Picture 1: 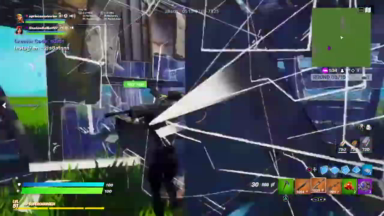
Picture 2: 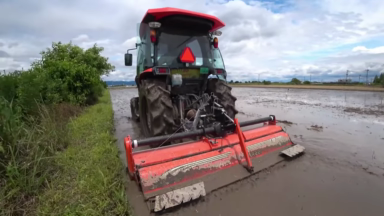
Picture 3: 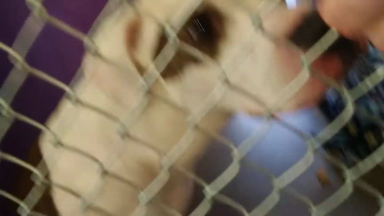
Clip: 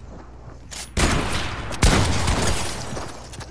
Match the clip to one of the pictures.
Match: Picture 1